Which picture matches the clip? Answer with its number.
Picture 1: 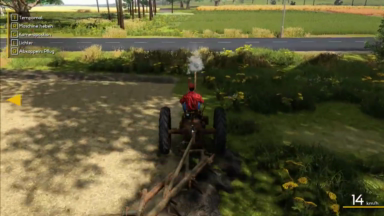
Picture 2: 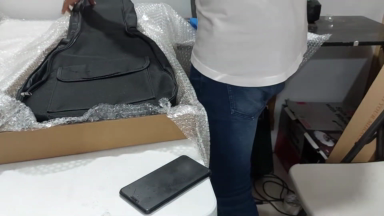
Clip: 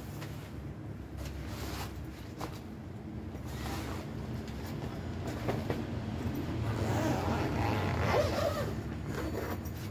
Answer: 2